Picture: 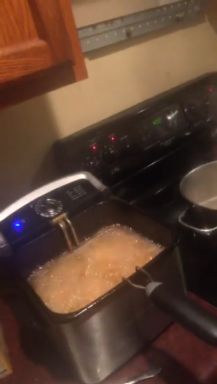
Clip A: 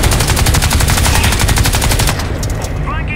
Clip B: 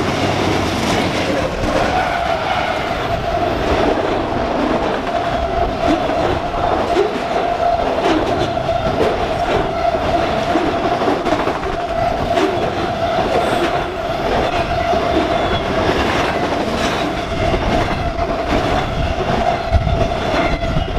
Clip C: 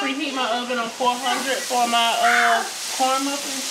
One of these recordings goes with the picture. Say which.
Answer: C